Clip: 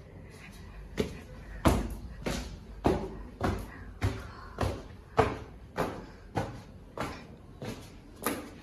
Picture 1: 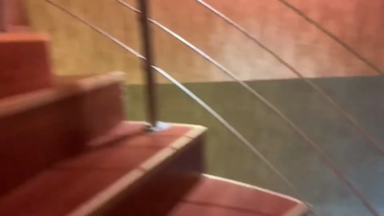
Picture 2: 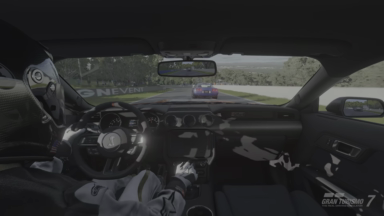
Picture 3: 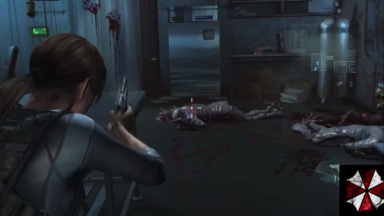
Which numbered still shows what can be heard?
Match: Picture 1